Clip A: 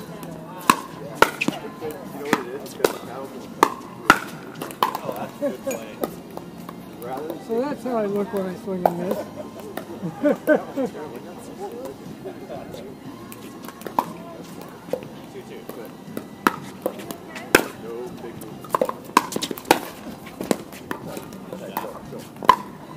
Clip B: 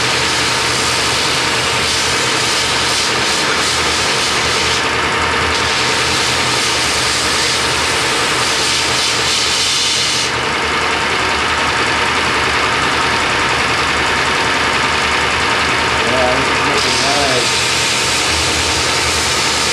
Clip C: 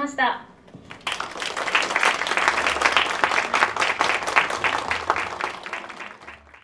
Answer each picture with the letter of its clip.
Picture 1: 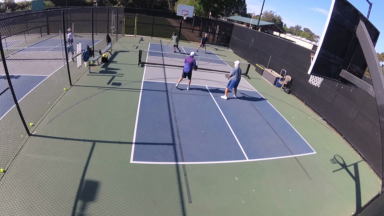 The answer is A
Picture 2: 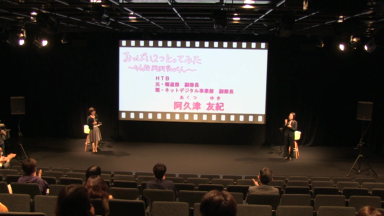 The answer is C